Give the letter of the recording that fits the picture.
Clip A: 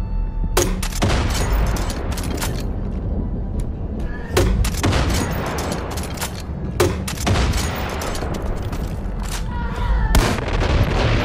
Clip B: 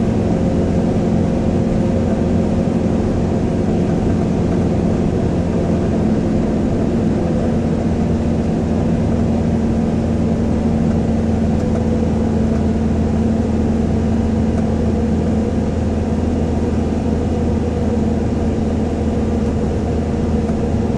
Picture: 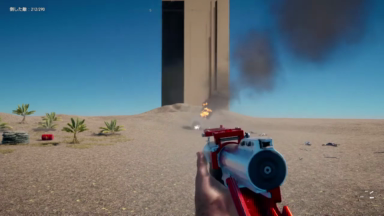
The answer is A